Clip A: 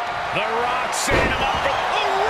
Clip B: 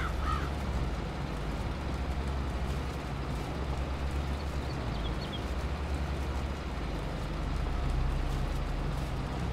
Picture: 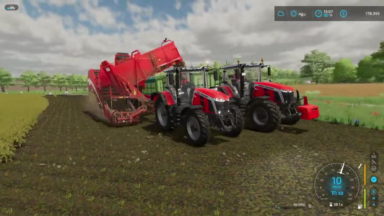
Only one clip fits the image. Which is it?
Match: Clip B